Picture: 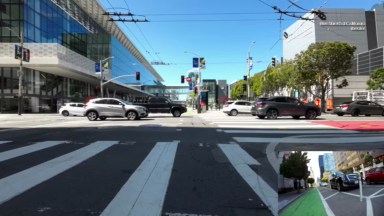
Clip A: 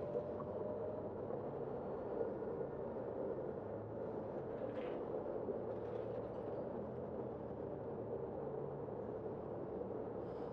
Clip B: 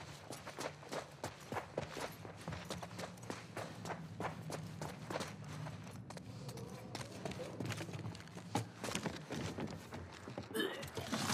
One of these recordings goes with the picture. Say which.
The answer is A